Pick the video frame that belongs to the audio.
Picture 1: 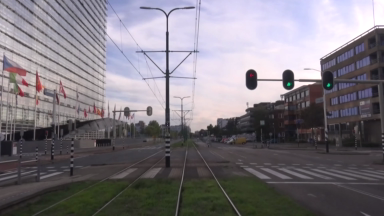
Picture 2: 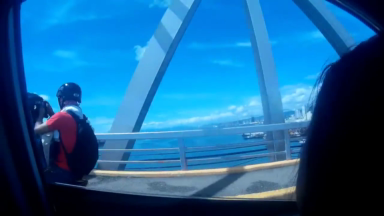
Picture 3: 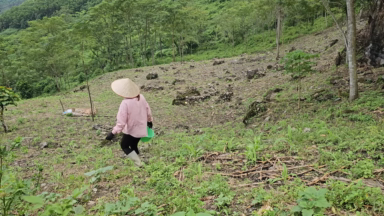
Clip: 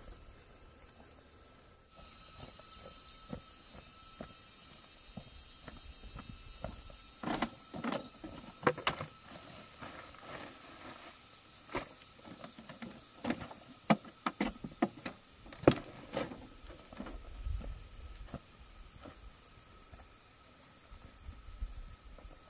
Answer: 3